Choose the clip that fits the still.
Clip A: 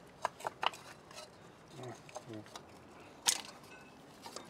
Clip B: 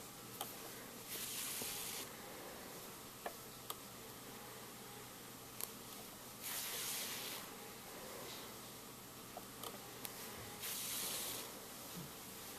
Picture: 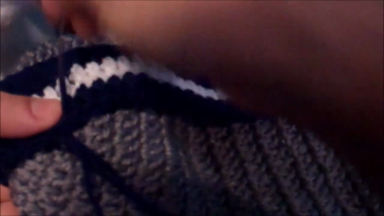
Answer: B